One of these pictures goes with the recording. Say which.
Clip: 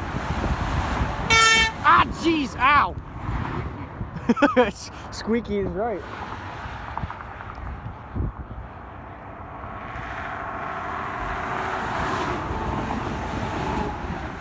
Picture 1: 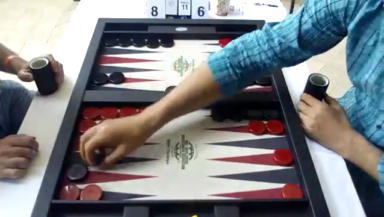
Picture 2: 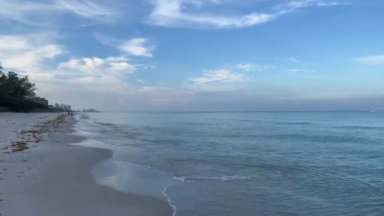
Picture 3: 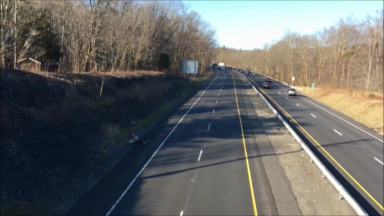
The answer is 3